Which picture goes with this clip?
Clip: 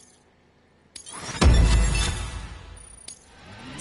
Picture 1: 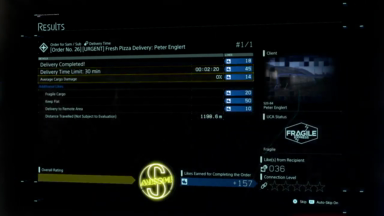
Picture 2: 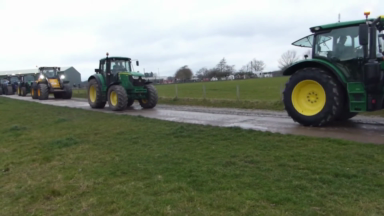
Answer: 1